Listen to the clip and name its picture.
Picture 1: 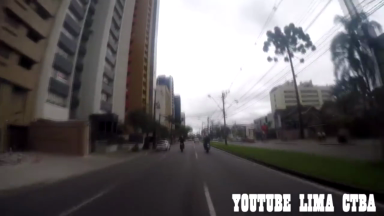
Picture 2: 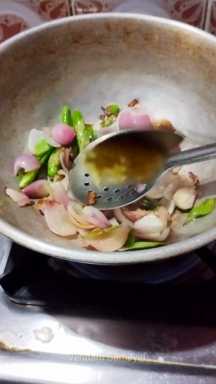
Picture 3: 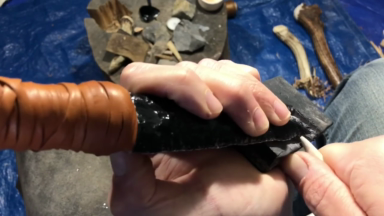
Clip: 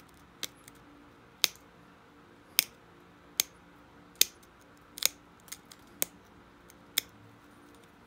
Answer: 3